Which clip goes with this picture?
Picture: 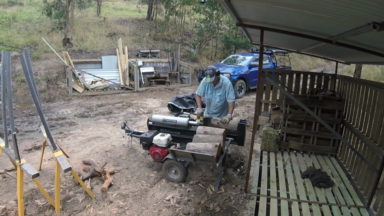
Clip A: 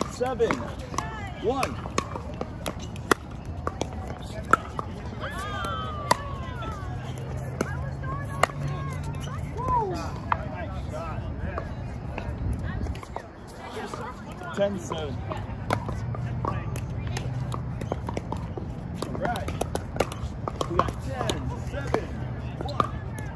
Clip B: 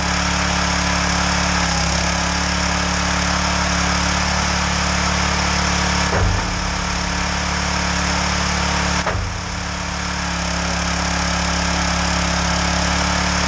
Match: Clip B